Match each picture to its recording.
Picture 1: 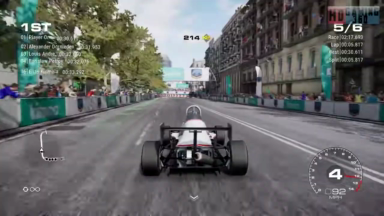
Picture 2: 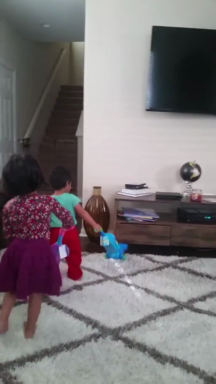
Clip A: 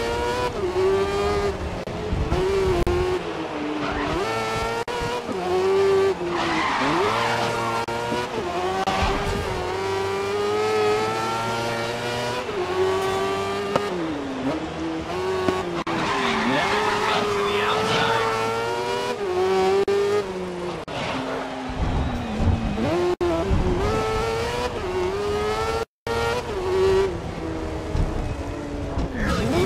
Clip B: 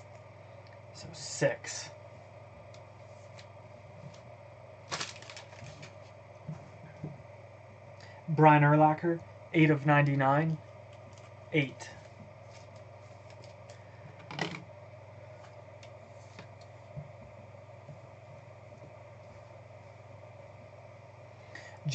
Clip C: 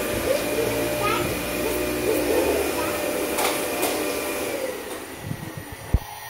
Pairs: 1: A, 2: C